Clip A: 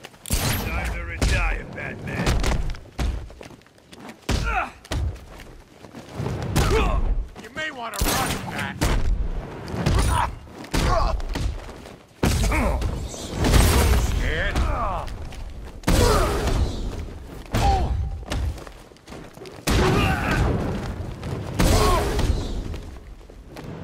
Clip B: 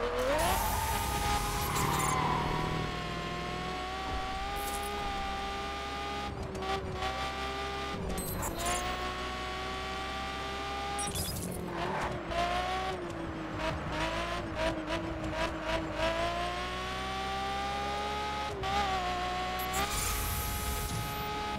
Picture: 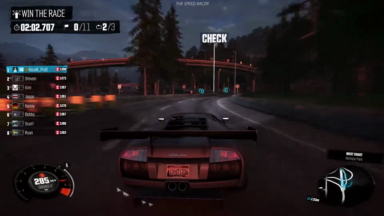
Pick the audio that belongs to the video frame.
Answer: B